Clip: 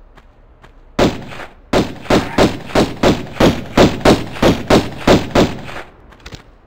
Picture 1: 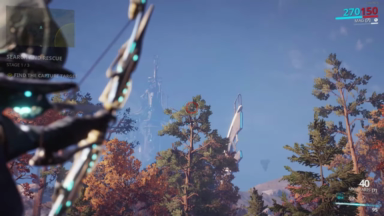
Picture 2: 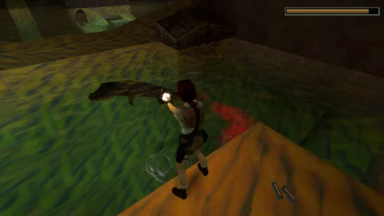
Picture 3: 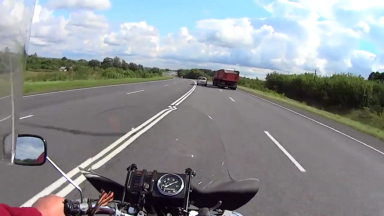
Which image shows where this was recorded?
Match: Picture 2